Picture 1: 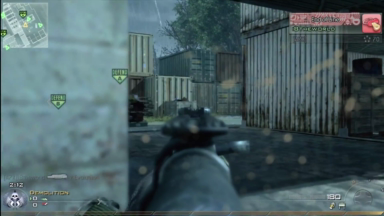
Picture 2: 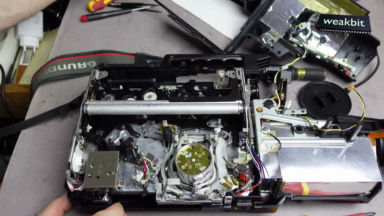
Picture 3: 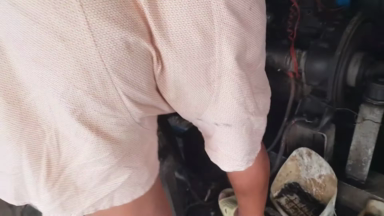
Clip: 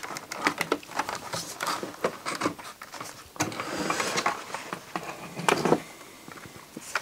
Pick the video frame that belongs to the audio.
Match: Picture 2